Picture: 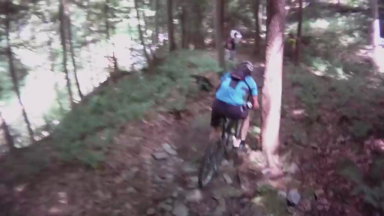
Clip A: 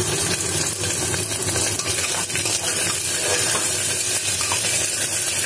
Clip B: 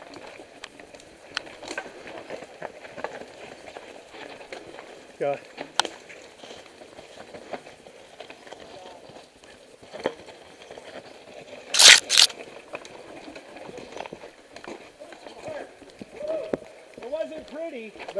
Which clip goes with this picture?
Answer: B